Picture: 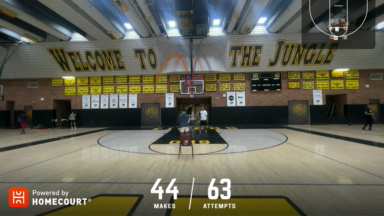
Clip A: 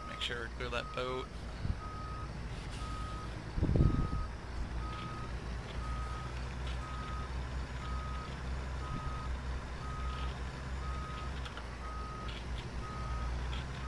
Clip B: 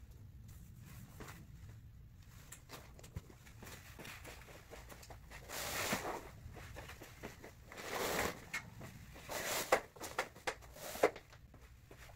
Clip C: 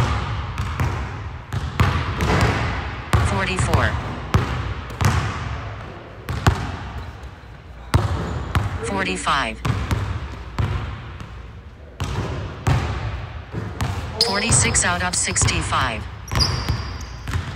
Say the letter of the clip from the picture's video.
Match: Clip C